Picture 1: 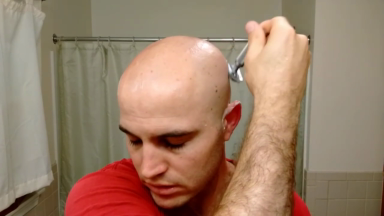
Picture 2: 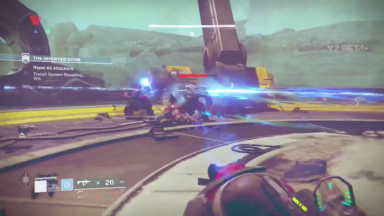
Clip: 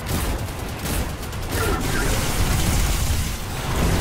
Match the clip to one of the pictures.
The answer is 2